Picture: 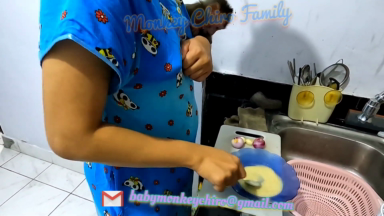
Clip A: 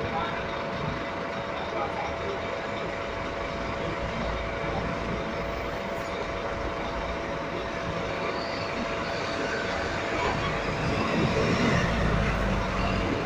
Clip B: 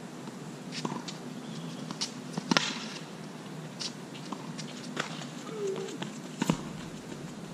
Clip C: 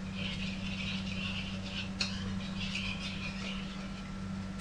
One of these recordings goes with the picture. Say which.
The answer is C